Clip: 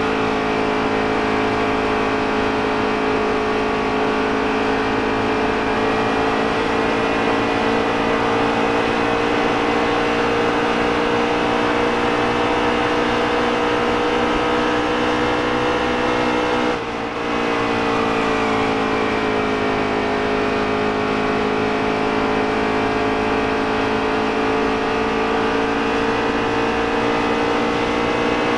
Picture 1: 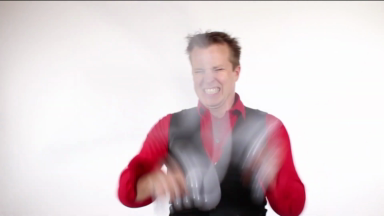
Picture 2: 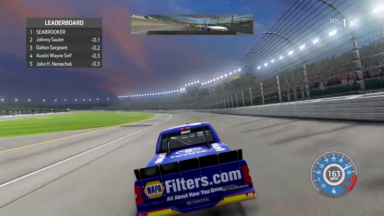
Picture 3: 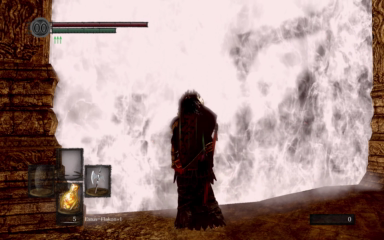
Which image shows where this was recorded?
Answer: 2